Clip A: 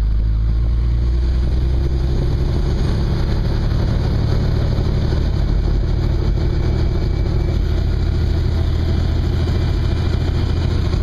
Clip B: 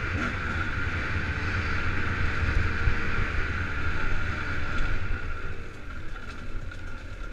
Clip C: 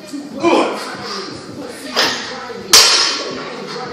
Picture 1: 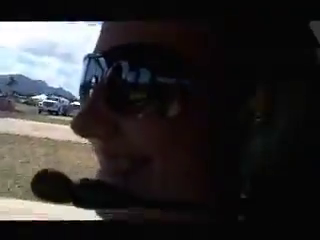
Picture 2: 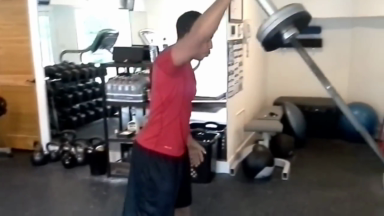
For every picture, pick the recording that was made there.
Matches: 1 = A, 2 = C